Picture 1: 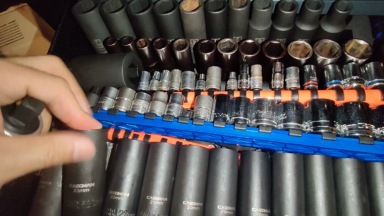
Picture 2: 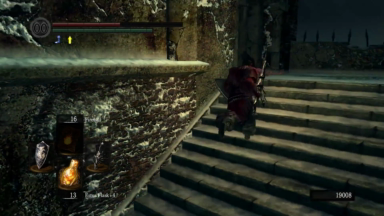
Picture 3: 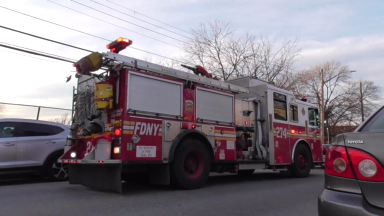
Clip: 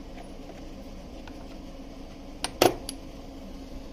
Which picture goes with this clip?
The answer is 1